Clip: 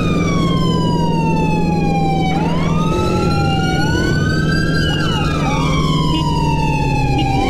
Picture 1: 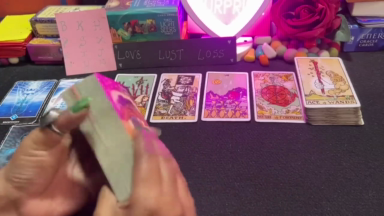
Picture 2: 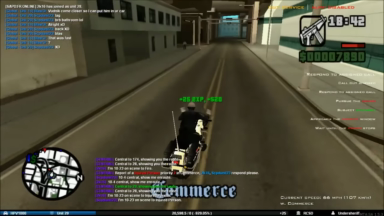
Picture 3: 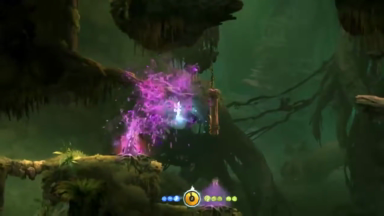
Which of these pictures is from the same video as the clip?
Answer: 2